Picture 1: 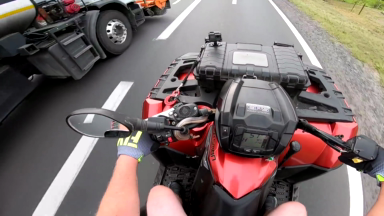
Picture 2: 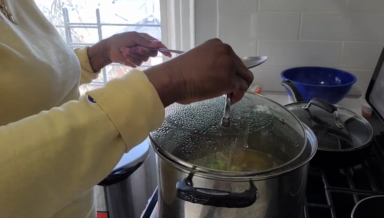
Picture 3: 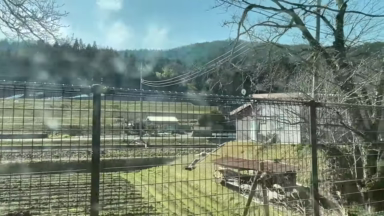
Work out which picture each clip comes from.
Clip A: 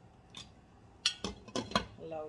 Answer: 2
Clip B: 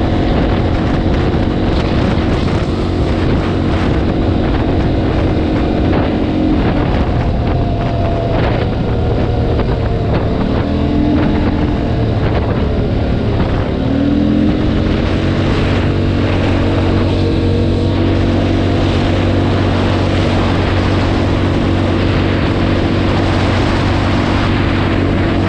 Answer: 1